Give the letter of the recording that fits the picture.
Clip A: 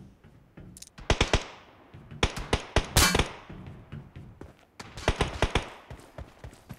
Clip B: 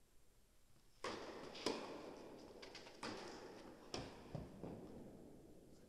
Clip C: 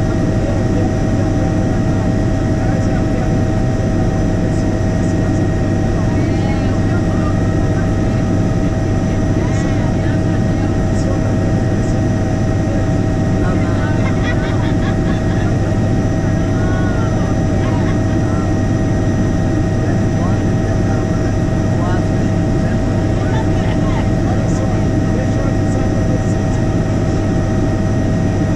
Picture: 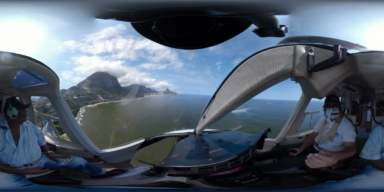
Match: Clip C